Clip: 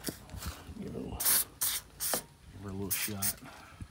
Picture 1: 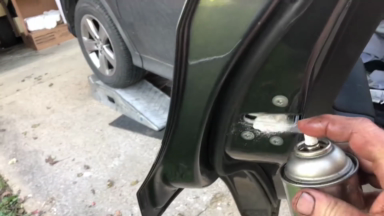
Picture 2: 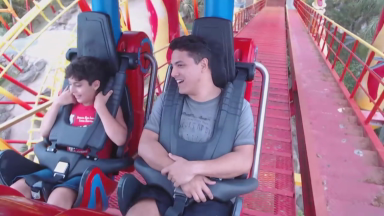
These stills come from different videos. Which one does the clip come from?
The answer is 1